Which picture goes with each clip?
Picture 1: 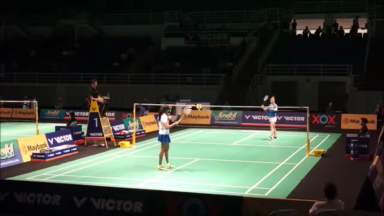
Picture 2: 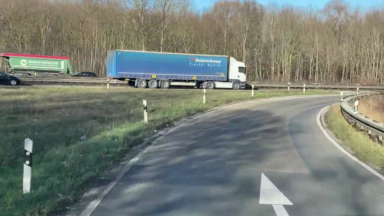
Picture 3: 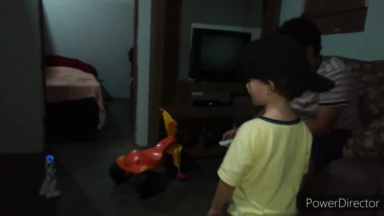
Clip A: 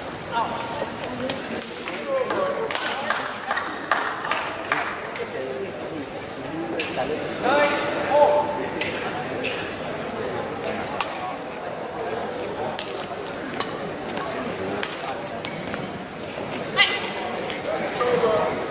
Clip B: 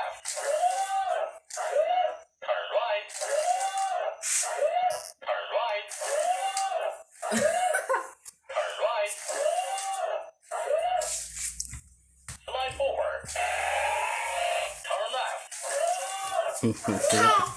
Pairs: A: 1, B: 3